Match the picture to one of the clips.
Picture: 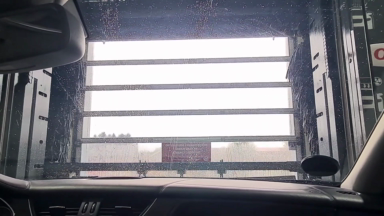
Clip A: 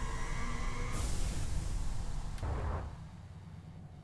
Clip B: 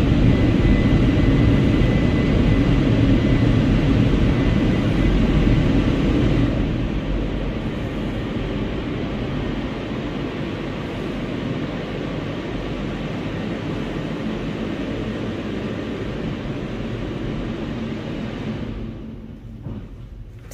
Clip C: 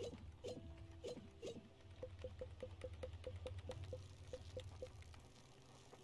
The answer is B